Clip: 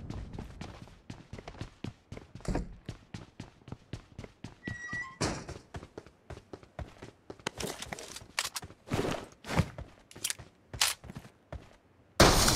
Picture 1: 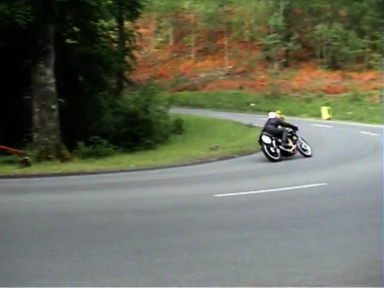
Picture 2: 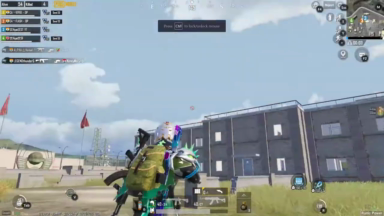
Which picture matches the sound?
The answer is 2